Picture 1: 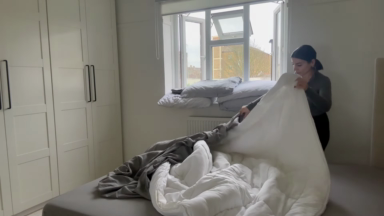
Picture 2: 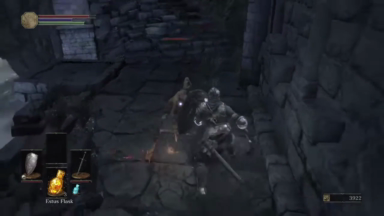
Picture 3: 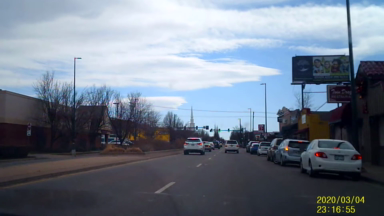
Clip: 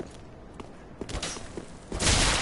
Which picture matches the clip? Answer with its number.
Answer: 2